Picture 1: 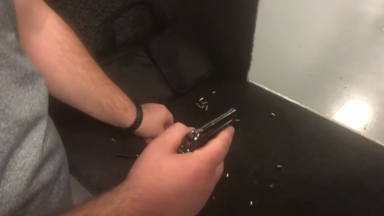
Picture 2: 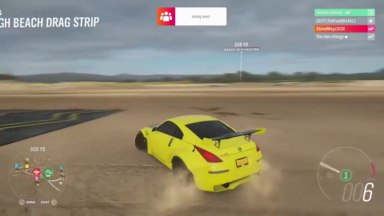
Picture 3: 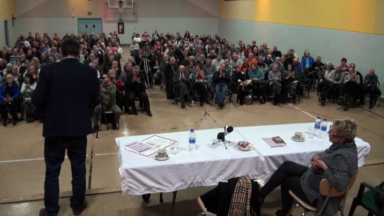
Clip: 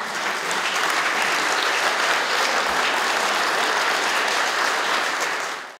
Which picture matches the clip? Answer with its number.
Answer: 3